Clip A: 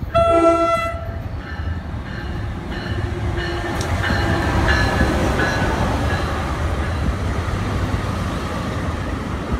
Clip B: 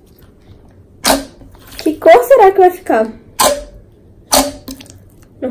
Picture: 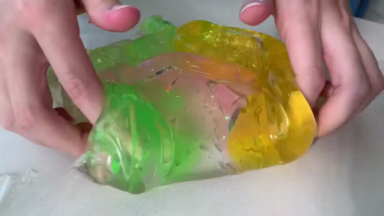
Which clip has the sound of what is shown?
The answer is B